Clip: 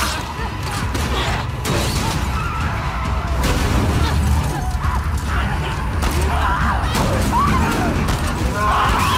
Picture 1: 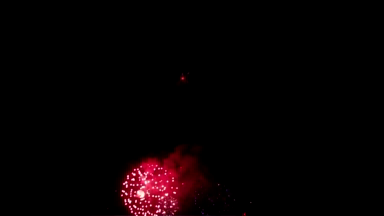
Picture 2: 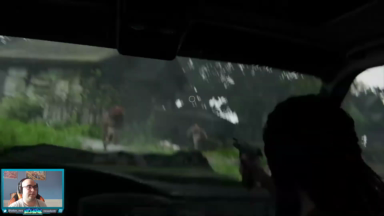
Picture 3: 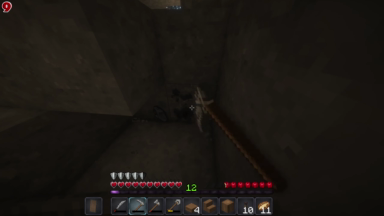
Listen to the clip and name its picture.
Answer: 2